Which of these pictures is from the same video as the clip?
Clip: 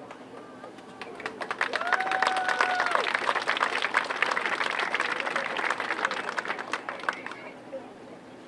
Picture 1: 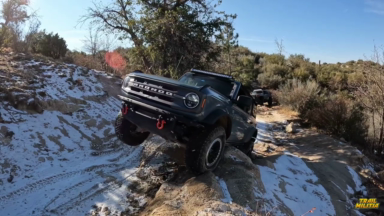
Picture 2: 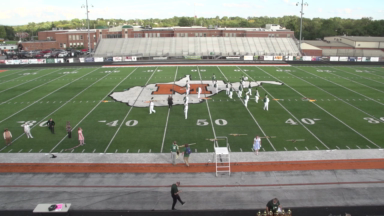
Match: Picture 2